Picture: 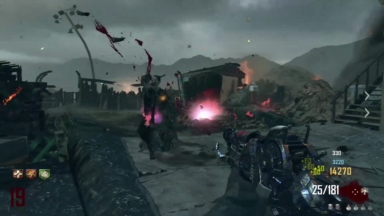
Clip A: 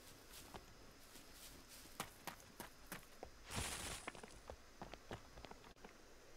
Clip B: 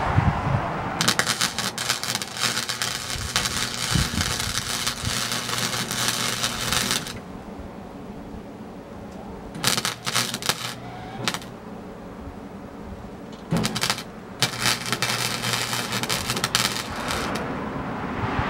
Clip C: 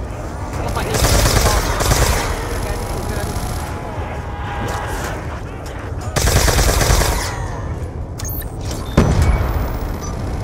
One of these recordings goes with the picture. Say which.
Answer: C